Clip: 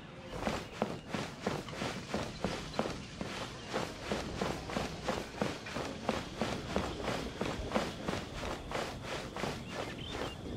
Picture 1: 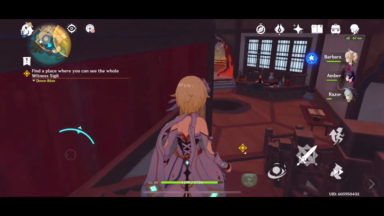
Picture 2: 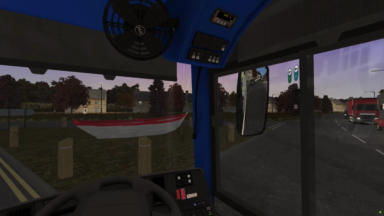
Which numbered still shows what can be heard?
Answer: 1